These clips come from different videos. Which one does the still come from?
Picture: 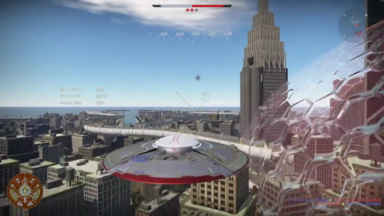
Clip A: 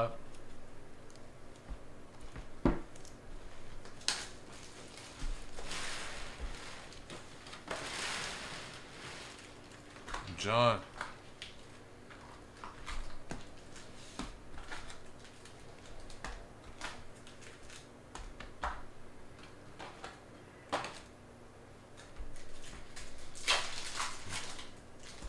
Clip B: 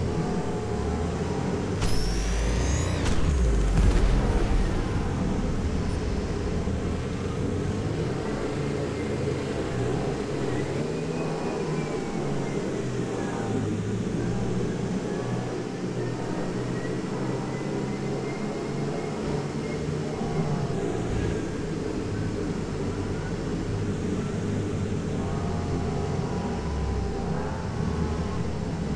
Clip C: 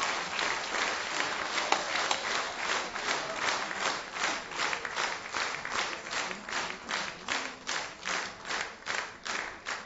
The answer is B